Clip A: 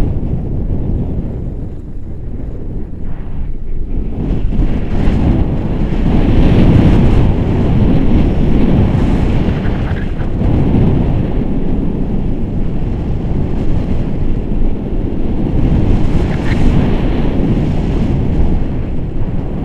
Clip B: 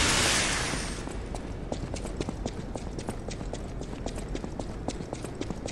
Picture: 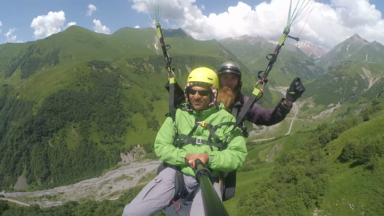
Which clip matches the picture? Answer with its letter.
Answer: A